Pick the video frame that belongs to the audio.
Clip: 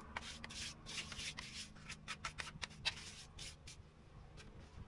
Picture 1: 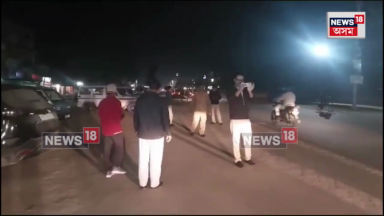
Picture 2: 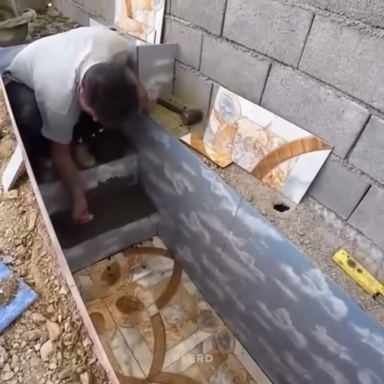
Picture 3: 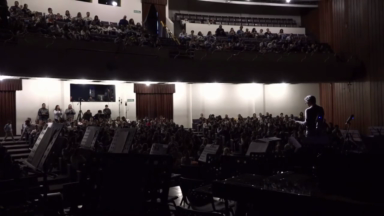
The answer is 2